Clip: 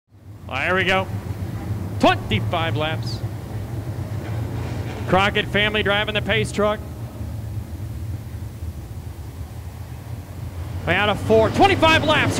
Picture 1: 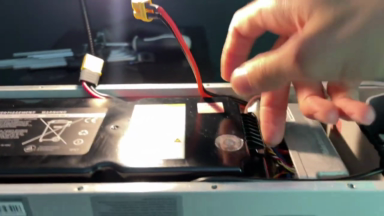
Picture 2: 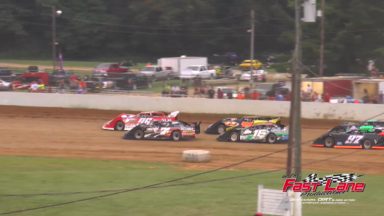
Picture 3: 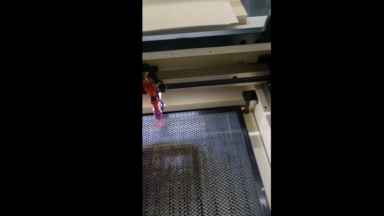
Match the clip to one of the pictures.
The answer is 2